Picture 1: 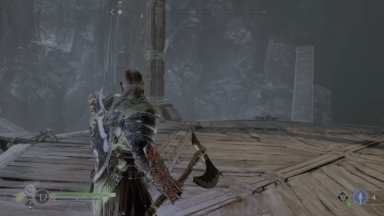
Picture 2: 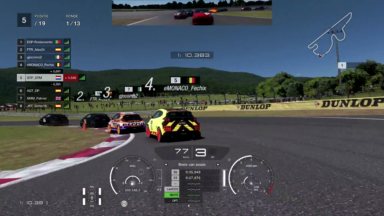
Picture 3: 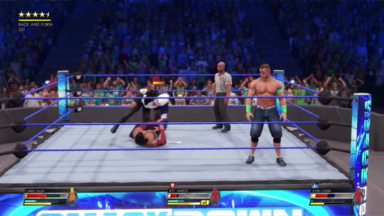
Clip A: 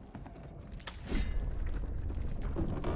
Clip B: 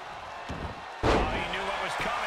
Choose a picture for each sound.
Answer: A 1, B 3